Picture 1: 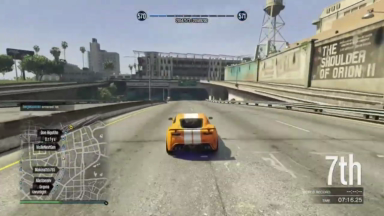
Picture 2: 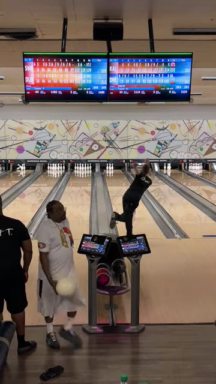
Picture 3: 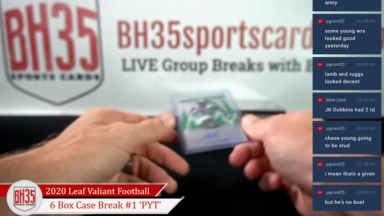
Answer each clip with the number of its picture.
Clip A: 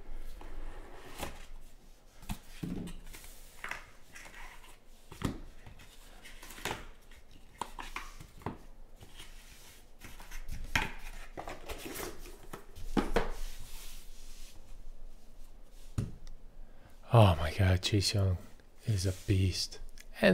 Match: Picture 3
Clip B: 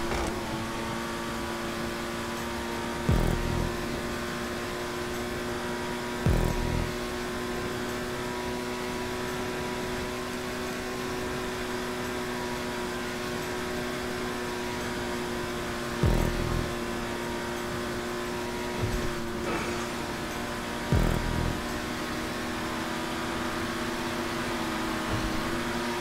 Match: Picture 1